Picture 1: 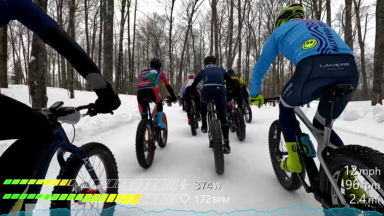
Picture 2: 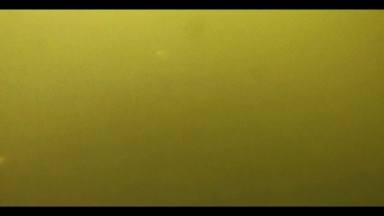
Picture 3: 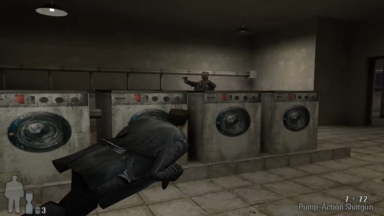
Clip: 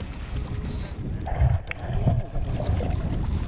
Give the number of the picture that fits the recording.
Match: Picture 2